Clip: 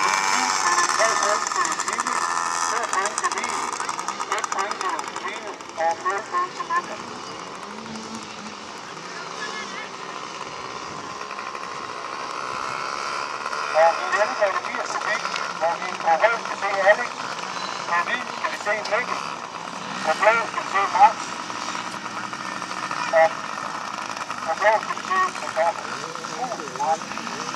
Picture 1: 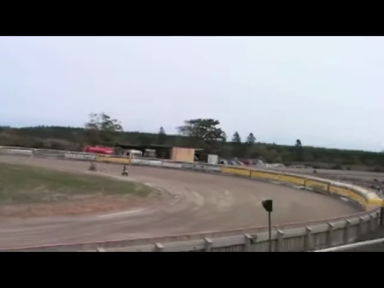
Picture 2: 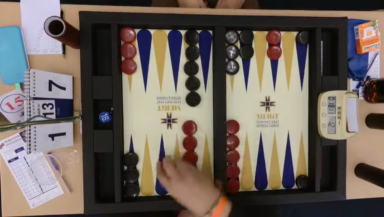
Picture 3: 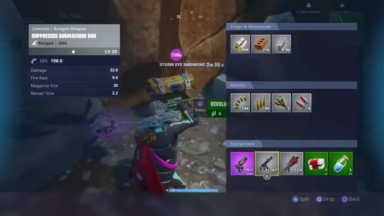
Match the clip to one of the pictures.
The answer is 1